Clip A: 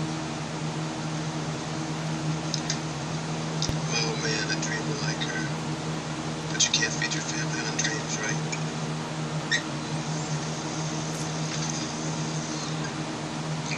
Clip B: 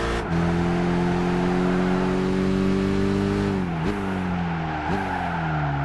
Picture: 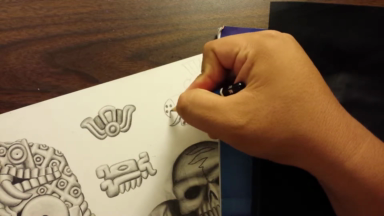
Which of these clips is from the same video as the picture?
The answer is A